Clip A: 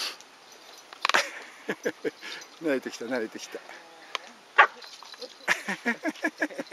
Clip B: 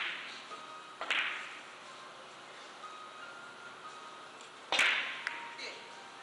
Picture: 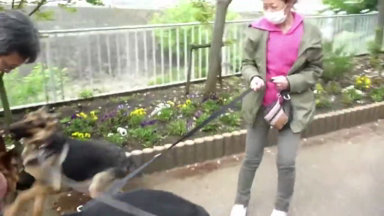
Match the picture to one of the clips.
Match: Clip A